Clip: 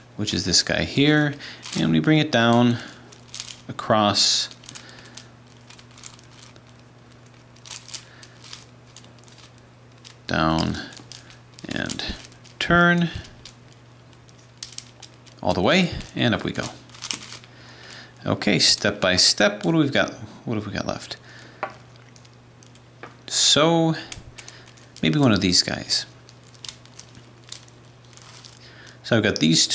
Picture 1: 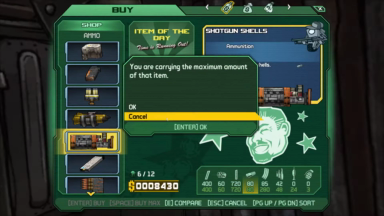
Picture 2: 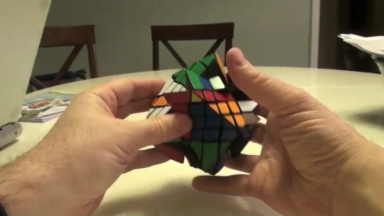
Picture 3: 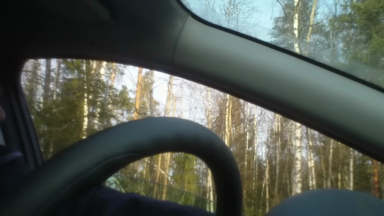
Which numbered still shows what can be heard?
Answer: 2